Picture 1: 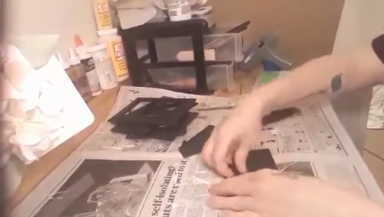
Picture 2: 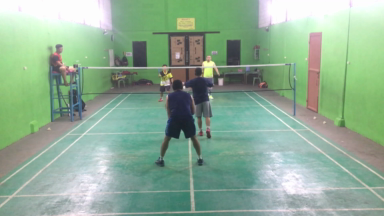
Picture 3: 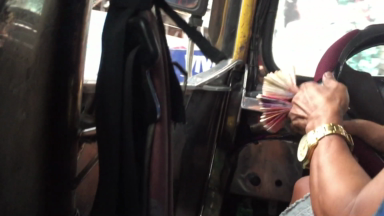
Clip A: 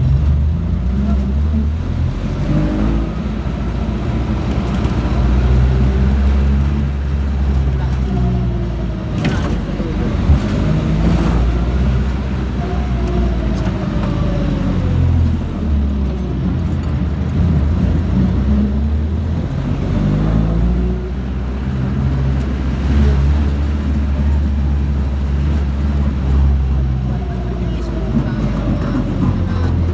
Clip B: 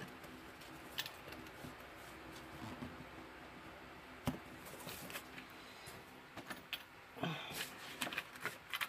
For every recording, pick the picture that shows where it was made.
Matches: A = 3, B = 1